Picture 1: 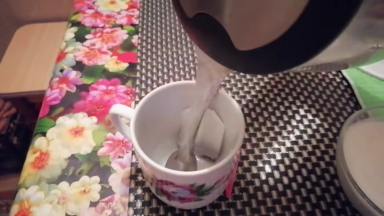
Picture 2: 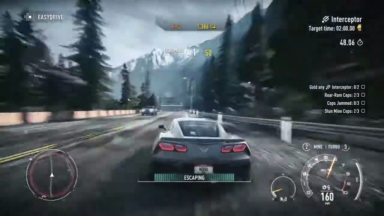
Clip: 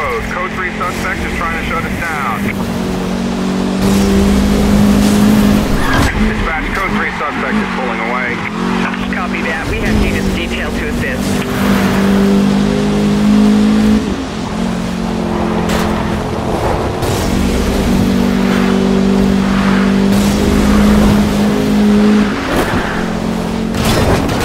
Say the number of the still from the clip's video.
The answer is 2